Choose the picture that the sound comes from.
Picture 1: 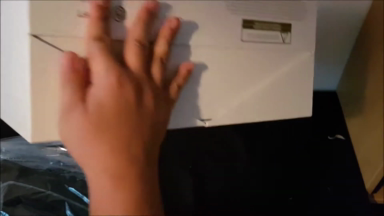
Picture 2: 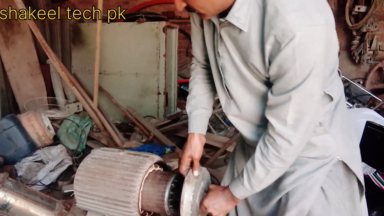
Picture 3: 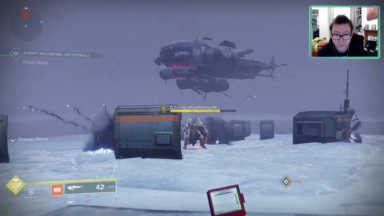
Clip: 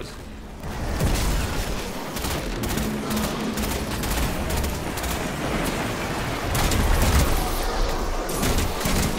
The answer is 3